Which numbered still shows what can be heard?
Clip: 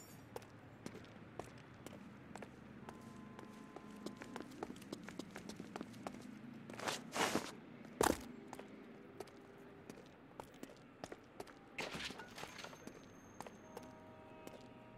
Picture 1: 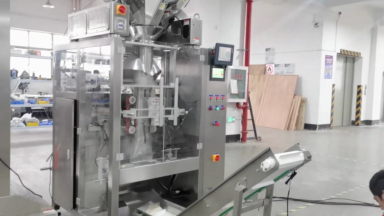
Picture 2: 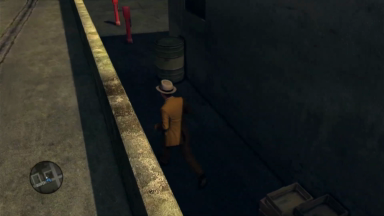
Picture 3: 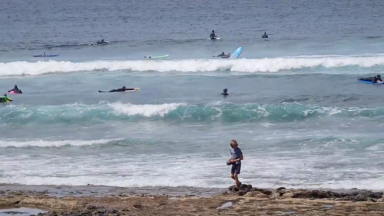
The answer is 2